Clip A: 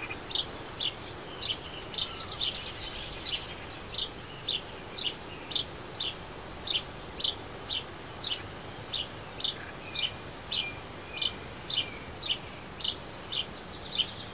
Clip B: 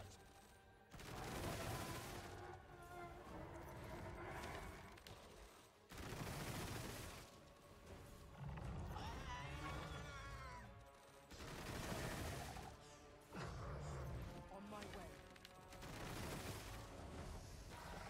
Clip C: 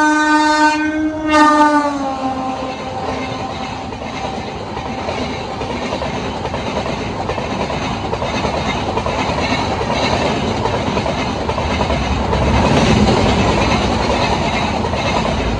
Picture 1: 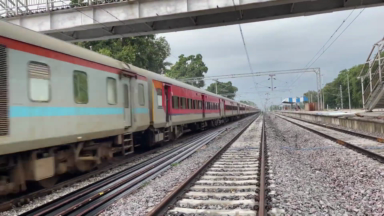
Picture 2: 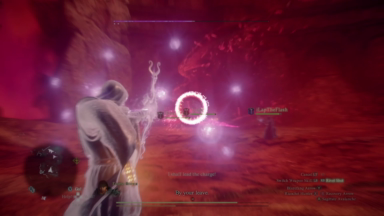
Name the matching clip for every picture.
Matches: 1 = C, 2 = B